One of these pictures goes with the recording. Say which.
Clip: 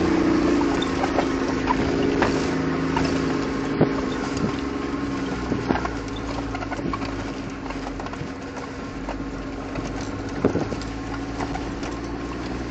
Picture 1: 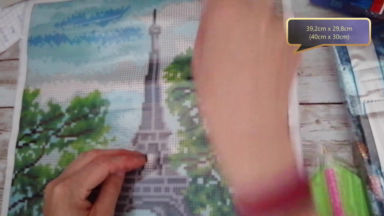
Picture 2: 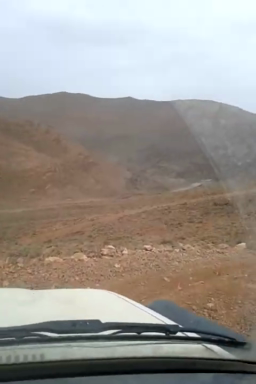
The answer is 2